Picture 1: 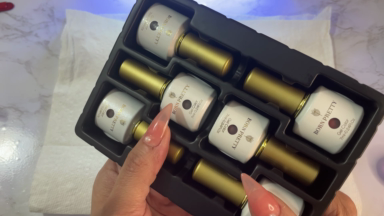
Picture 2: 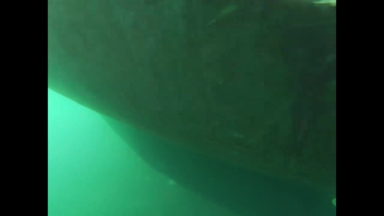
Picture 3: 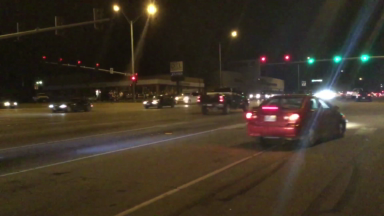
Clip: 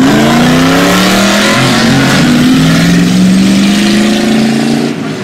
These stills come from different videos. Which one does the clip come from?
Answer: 3